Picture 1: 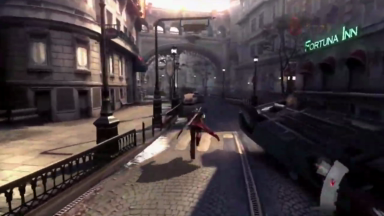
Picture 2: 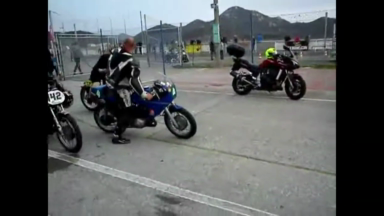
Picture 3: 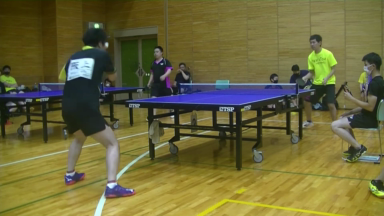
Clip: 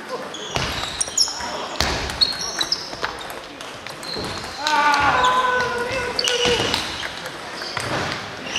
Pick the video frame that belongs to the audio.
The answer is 3